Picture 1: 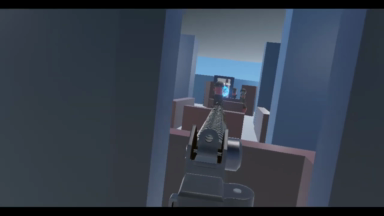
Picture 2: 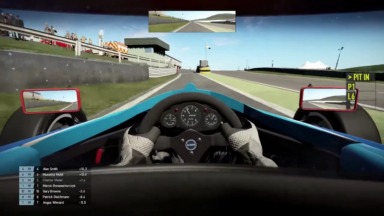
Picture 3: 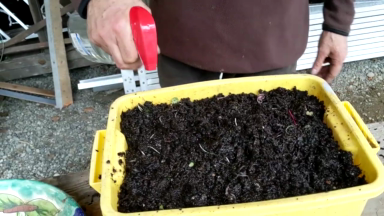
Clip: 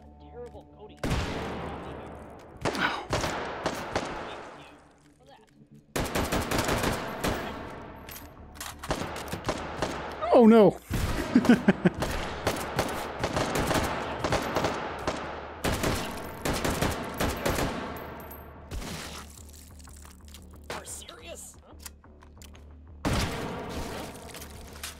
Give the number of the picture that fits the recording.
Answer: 1